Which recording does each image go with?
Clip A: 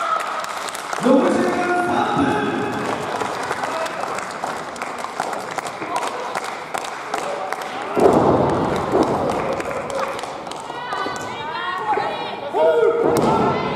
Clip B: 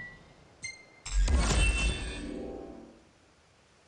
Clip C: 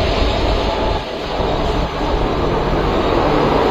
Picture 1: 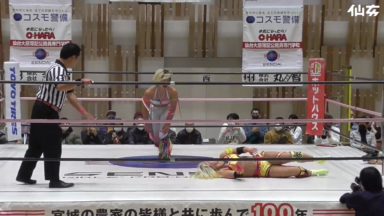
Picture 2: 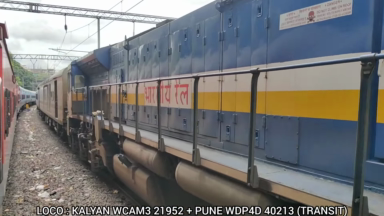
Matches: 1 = A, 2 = C